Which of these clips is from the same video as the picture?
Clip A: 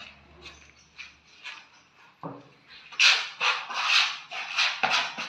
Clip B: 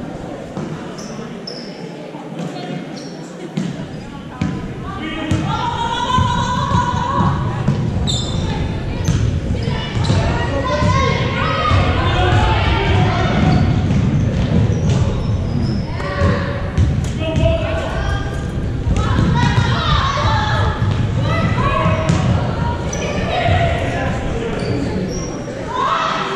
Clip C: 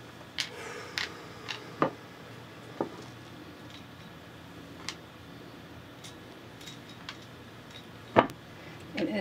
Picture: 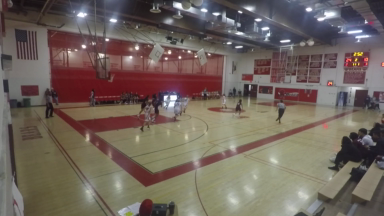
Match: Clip B